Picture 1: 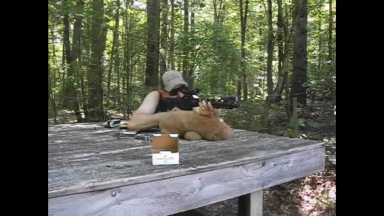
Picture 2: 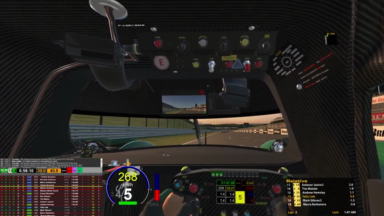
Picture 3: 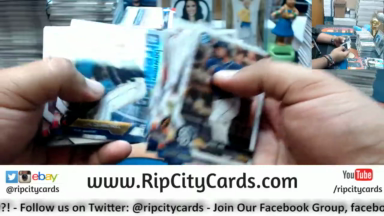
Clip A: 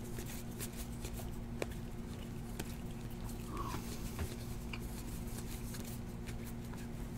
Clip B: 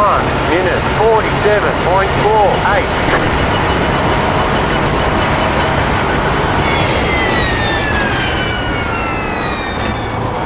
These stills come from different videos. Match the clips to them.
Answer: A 3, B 2